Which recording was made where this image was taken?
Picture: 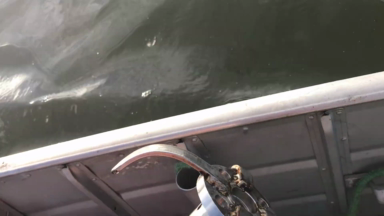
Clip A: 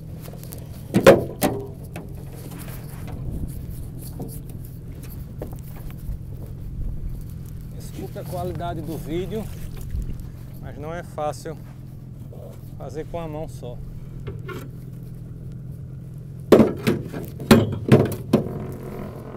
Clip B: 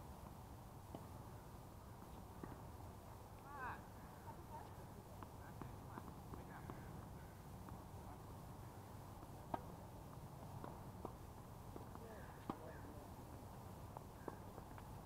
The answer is A